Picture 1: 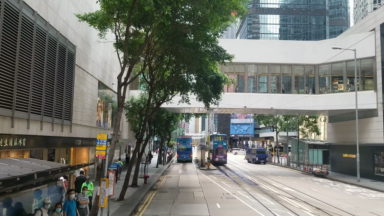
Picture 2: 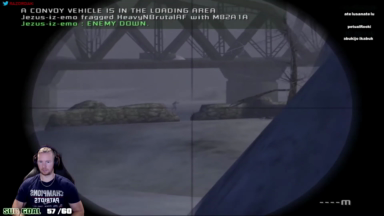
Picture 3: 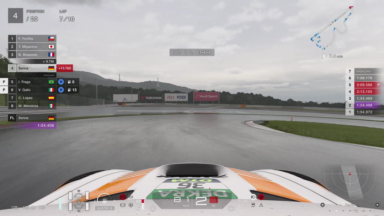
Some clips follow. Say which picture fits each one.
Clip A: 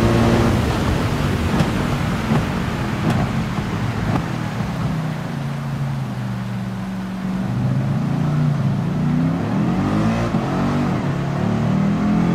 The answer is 3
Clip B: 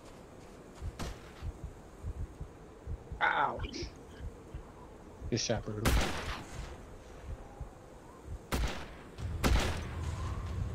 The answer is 2